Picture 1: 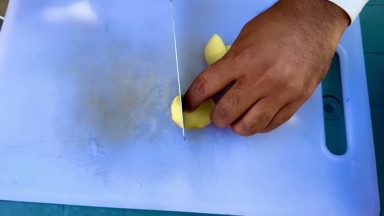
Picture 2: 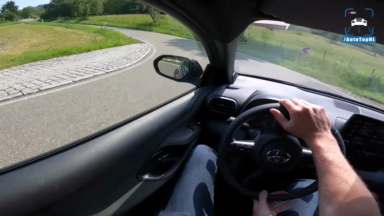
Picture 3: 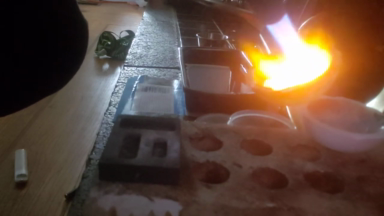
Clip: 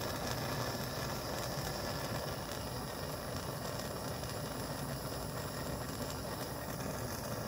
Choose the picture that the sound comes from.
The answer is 3